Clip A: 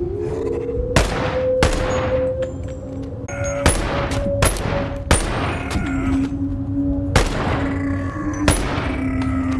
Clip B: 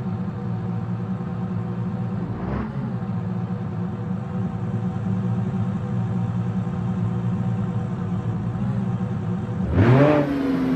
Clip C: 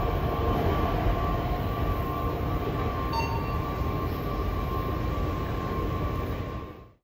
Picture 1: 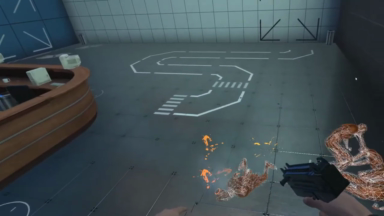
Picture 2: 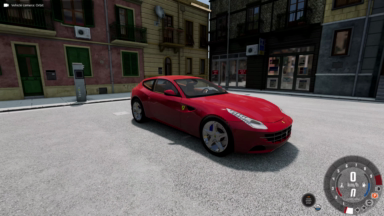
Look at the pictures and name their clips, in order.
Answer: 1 A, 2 B